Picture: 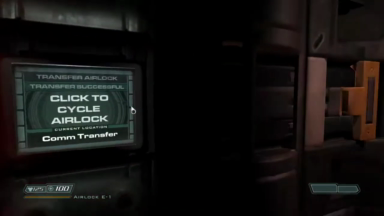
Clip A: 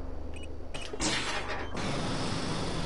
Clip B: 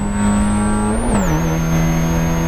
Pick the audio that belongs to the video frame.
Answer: A